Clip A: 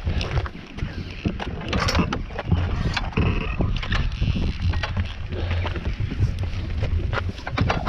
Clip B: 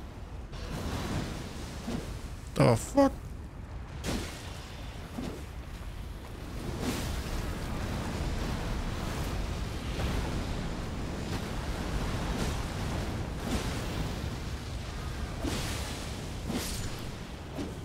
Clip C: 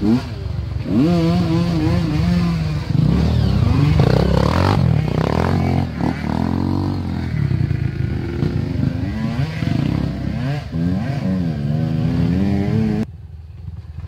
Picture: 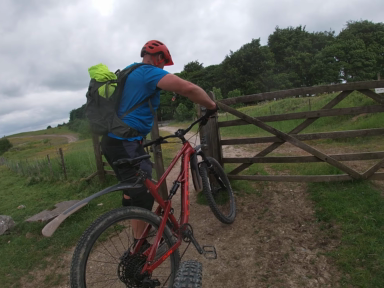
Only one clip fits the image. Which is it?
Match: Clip A